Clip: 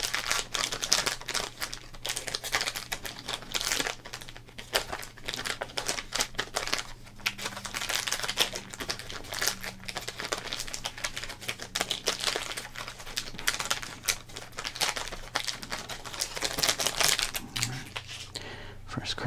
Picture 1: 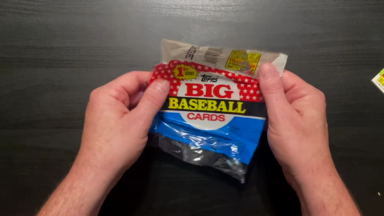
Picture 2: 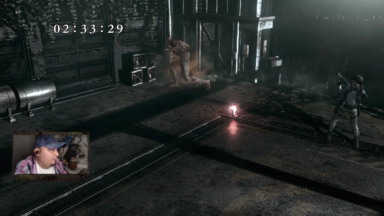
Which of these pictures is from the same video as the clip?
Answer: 1